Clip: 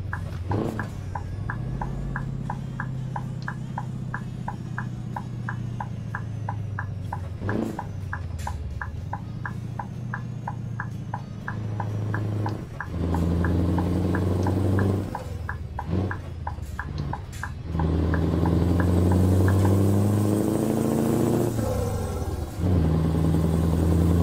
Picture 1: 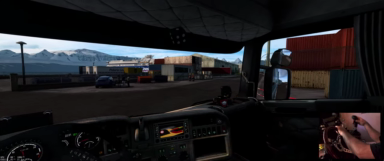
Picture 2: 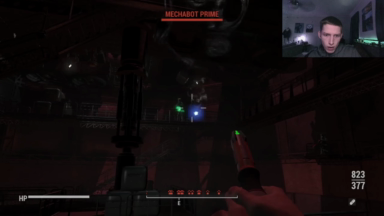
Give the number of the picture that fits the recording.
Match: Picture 1